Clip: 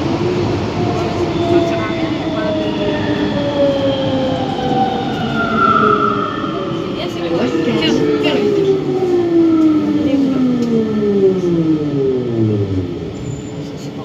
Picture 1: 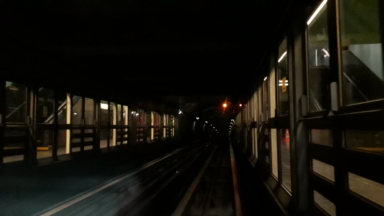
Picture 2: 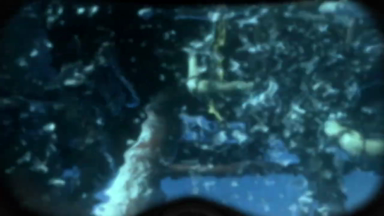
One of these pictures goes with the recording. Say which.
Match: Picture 1